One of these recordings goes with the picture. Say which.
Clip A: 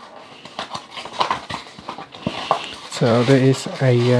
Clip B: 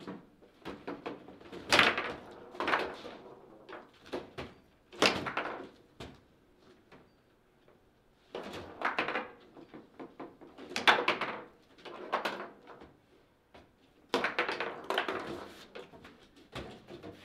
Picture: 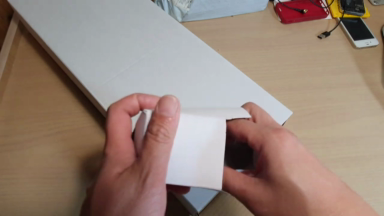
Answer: A